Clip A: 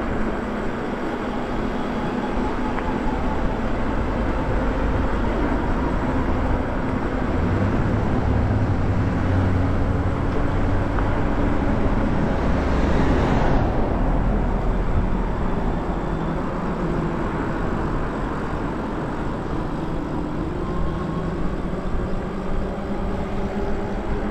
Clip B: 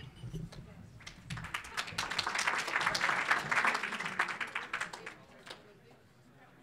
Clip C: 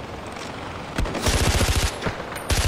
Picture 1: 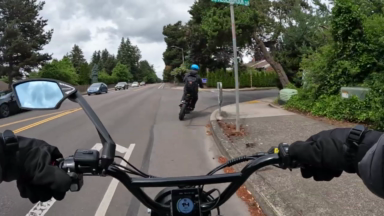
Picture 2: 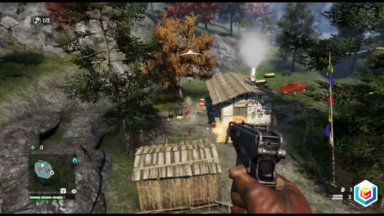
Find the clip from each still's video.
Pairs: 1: A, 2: C